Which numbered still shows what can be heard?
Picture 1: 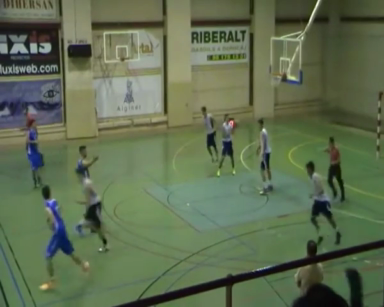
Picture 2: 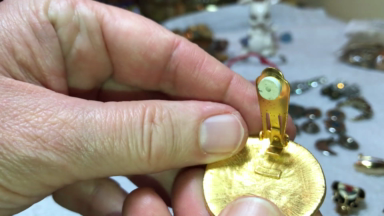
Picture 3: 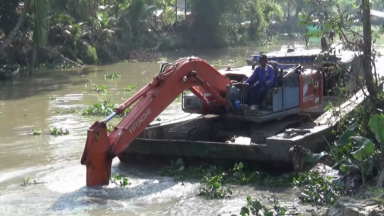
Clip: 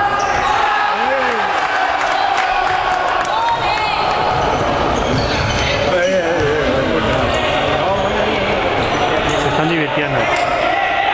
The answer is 1